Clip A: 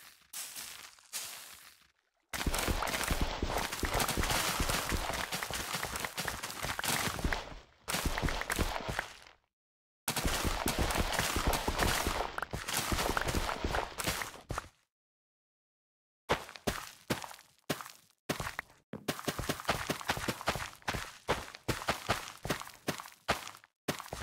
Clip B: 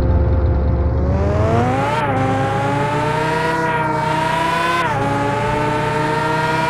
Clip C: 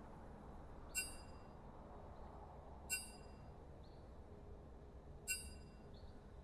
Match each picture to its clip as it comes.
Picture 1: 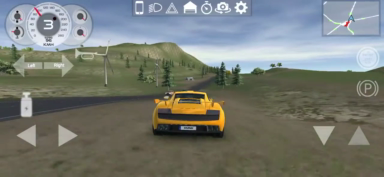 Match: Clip B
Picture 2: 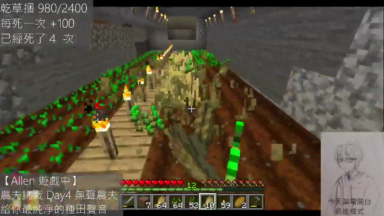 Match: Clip A